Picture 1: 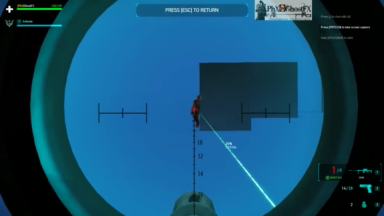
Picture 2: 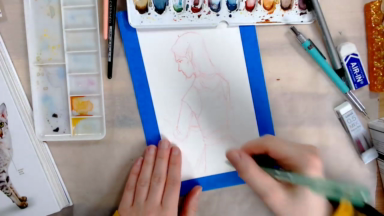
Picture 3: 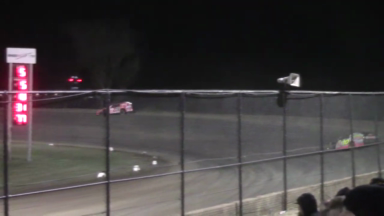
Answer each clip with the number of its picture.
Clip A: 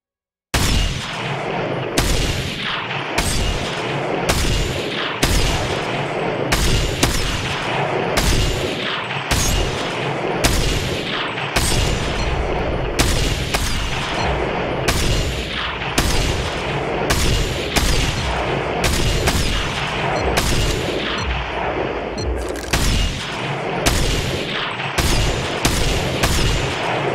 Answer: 1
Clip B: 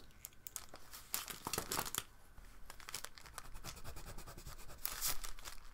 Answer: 2